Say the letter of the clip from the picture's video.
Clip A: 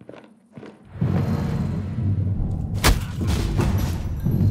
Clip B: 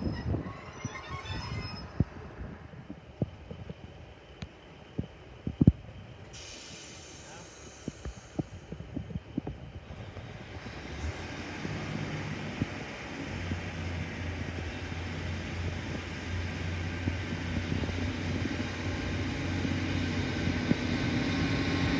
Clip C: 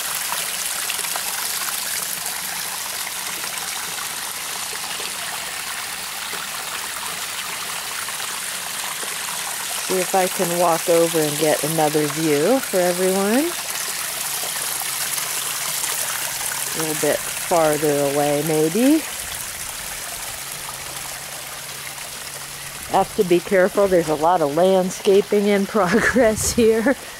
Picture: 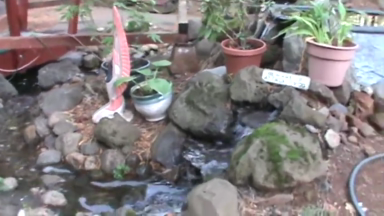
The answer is C